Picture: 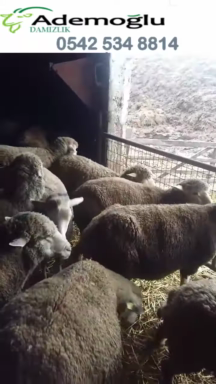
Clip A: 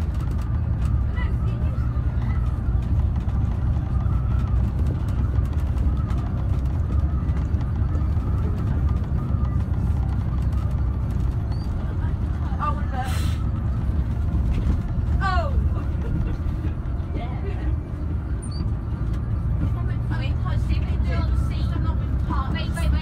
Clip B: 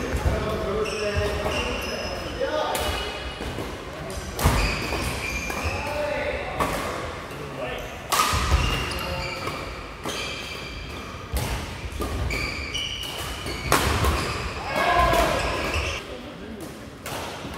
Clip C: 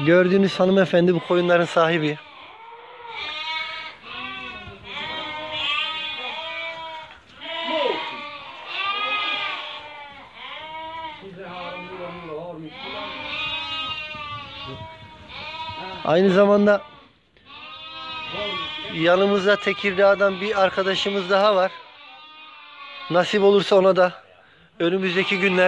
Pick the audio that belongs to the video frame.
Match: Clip C